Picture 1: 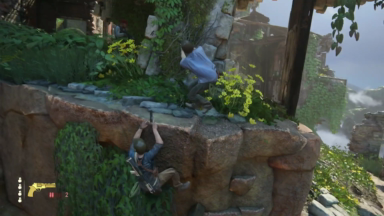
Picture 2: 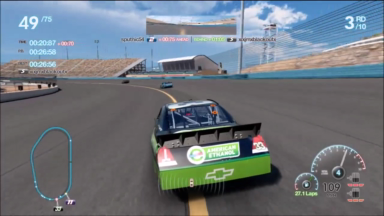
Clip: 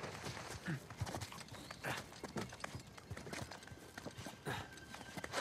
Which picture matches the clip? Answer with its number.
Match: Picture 1